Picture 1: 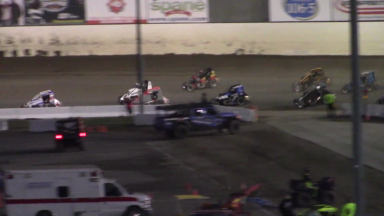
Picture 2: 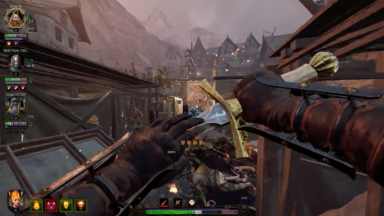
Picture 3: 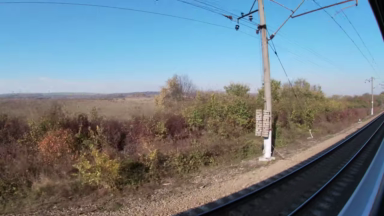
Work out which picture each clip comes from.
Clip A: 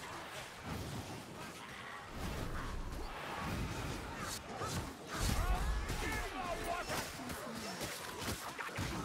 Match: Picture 2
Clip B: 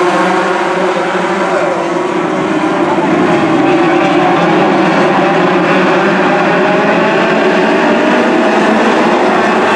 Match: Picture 1